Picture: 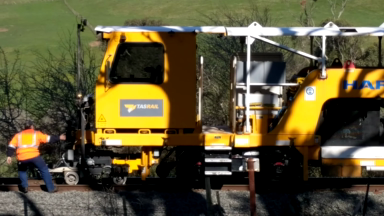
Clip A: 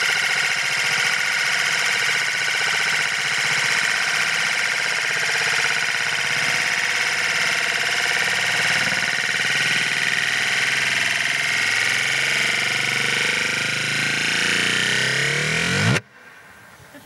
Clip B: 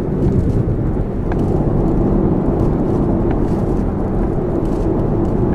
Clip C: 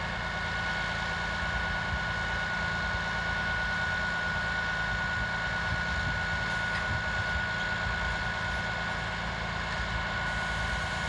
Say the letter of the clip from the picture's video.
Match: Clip C